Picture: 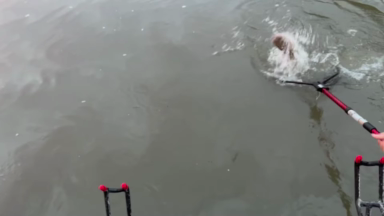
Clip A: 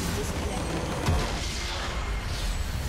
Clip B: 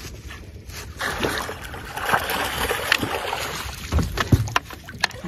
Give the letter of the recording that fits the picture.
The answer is B